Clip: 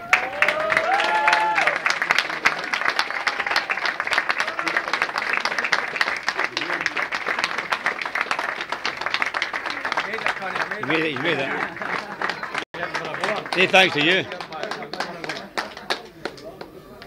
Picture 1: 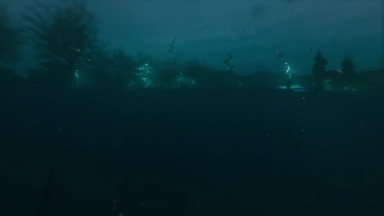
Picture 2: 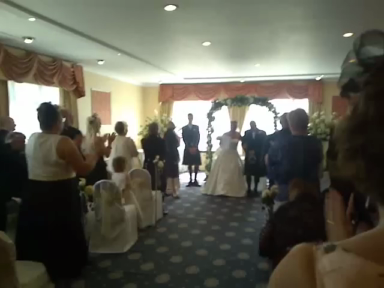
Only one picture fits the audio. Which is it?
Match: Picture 2